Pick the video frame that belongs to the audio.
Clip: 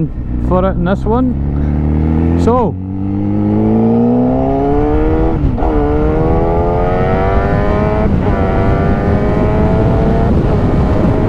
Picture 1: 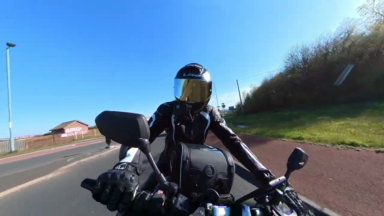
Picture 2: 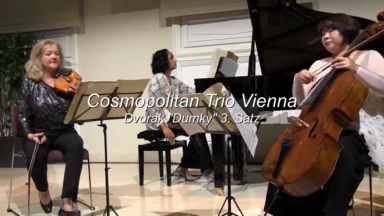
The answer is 1